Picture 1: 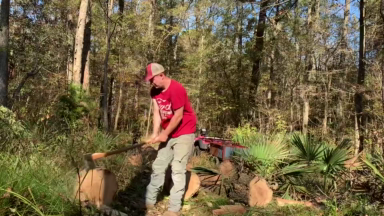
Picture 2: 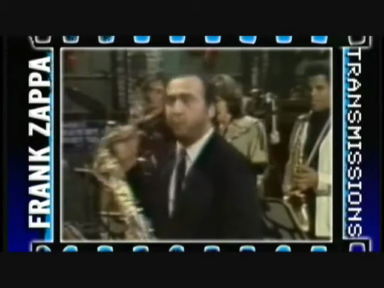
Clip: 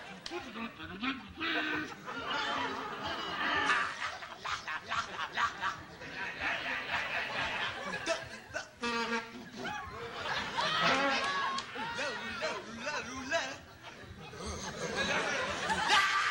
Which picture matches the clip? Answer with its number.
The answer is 2